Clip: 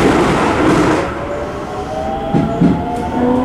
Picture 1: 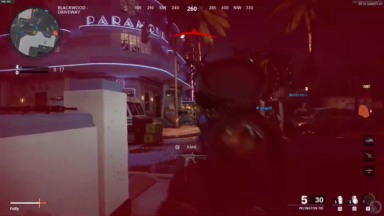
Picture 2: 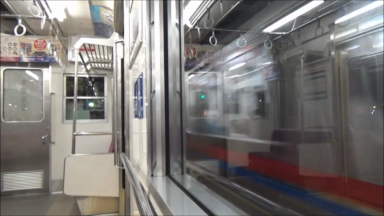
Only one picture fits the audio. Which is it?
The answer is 2